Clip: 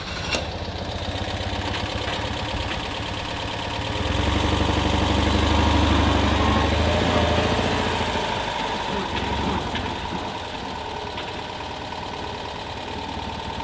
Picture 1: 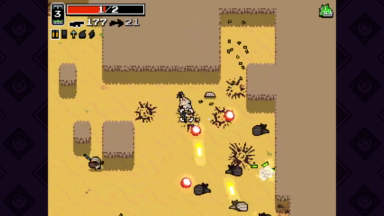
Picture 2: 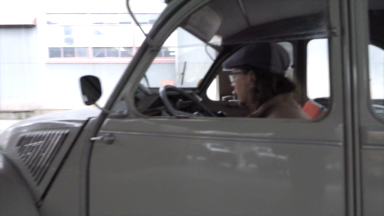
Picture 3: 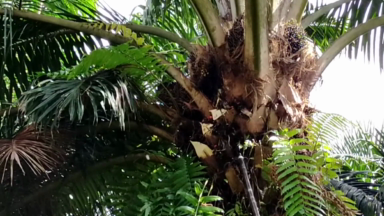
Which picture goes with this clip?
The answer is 2